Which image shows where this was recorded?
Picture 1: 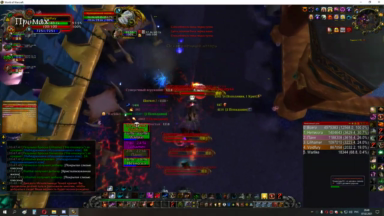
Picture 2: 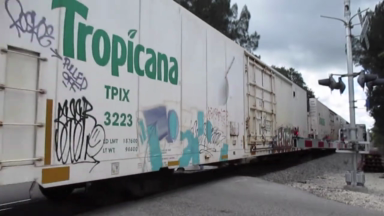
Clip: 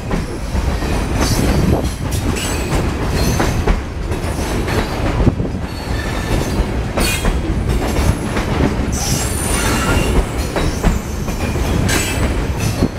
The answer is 2